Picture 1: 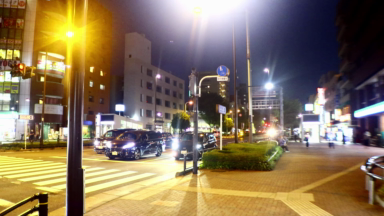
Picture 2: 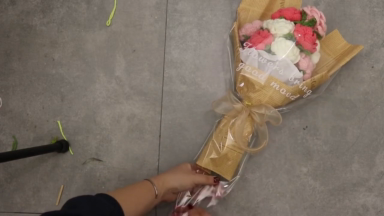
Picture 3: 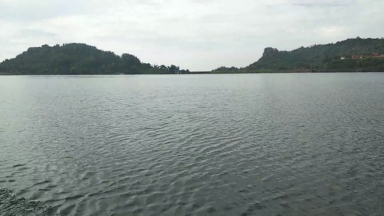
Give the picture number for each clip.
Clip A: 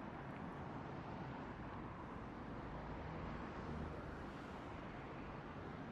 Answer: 1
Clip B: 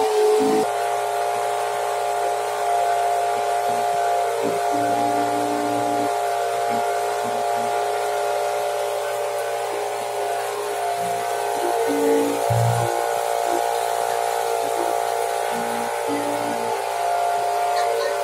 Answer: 3